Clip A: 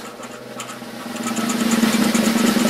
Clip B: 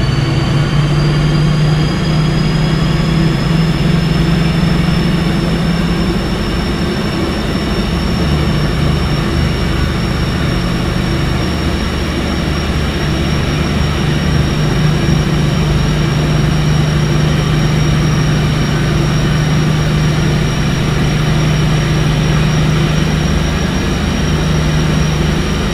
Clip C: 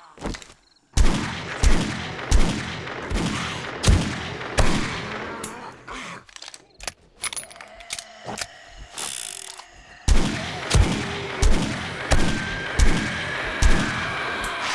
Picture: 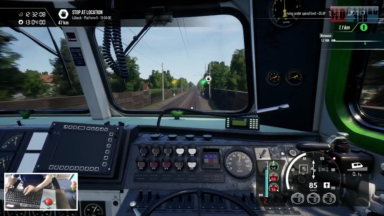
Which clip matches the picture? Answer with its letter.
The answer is B